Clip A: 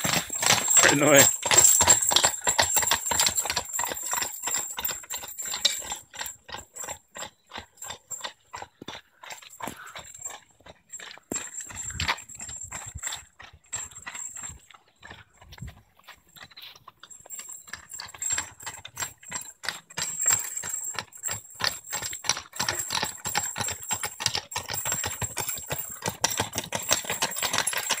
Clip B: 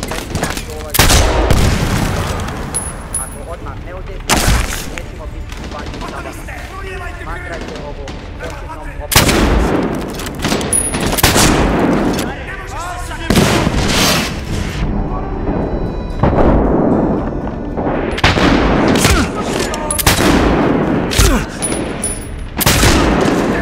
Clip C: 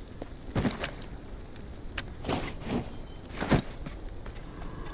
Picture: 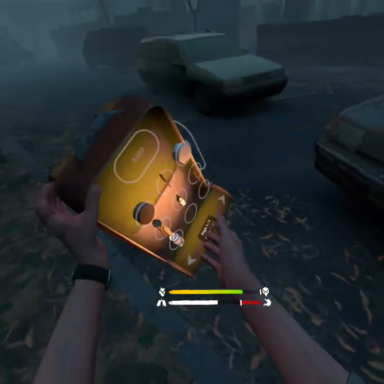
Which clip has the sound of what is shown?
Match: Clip C